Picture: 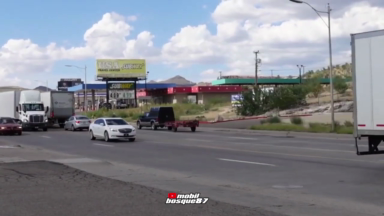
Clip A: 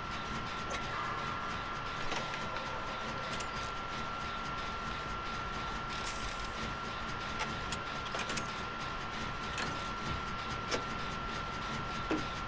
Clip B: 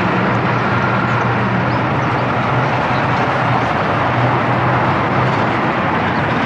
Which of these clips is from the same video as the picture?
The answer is B